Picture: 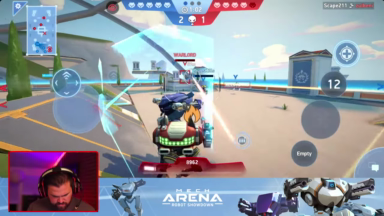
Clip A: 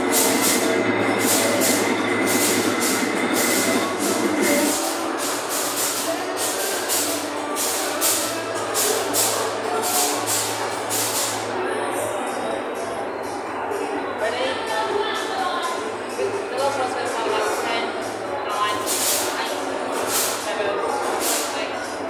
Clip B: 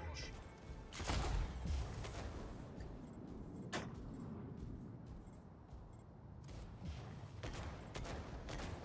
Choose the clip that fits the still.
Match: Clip B